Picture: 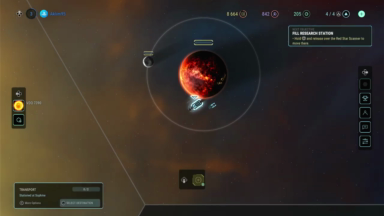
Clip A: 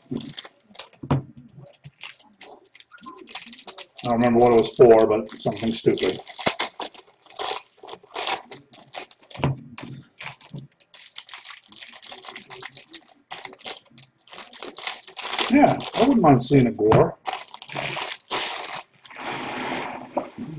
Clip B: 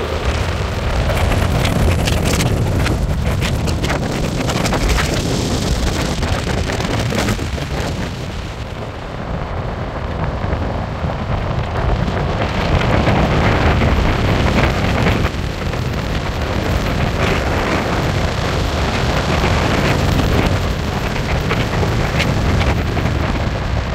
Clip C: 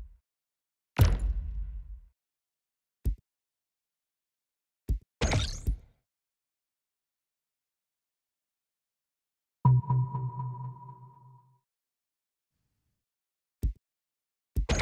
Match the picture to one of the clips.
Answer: C